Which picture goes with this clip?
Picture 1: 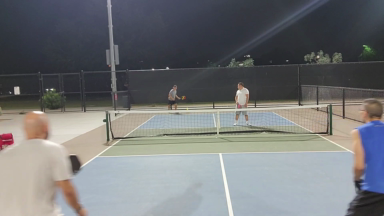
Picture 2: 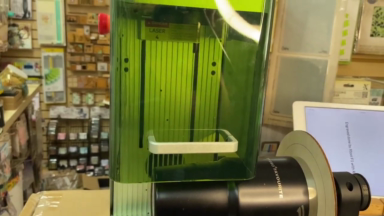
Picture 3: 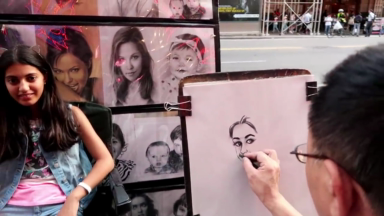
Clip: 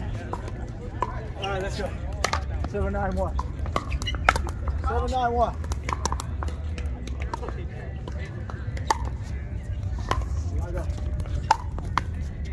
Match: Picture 1